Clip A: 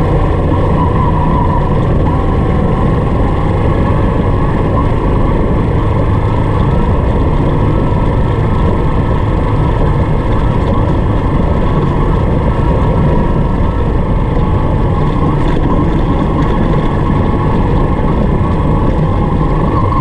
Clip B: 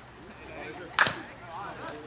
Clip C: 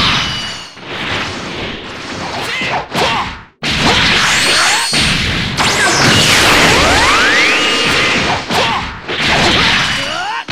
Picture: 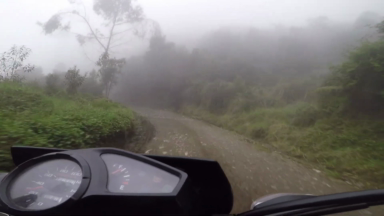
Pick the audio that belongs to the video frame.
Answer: A